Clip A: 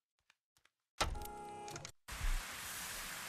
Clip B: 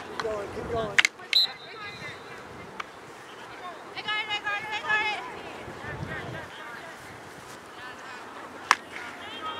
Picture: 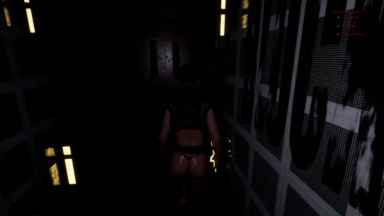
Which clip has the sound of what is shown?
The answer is A